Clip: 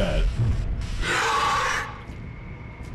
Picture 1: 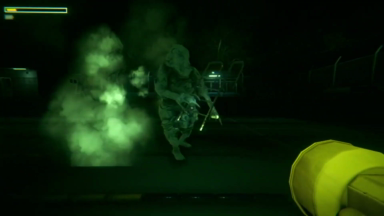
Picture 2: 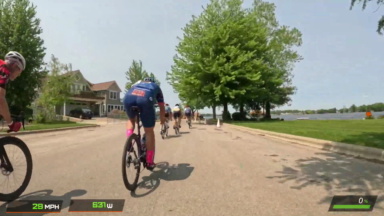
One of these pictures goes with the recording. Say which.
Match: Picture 1